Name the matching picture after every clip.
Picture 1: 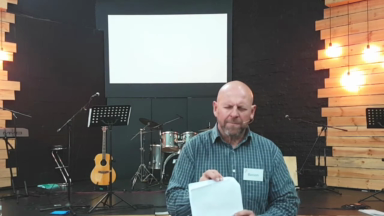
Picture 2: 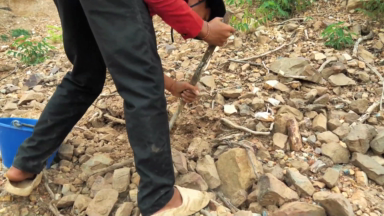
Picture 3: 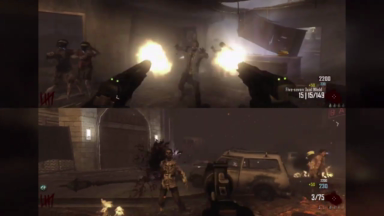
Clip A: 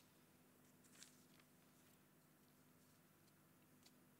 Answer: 1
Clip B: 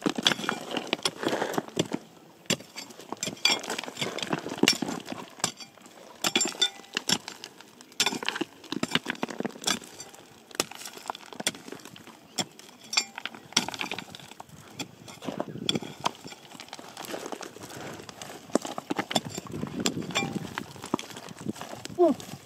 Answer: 2